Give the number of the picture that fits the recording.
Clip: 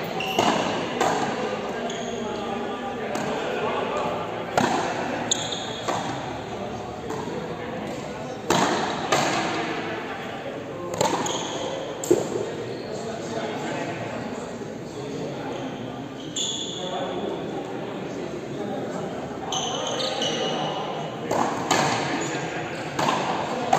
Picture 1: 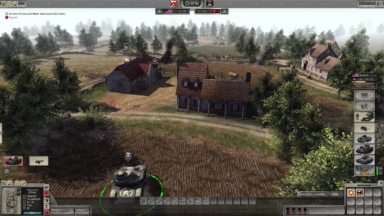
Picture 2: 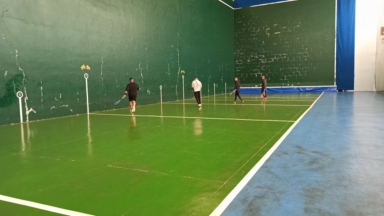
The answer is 2